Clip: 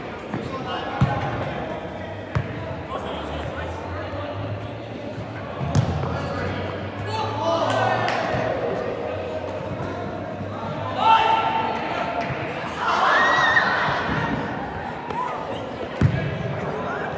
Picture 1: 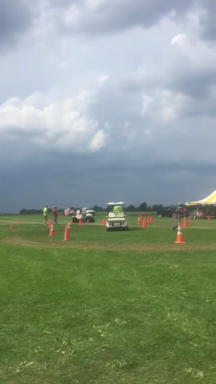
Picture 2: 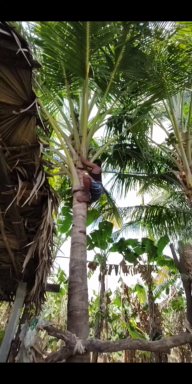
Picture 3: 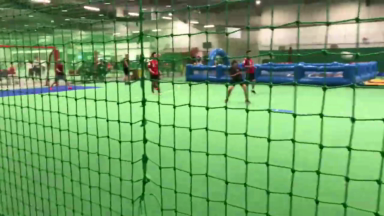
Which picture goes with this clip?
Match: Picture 3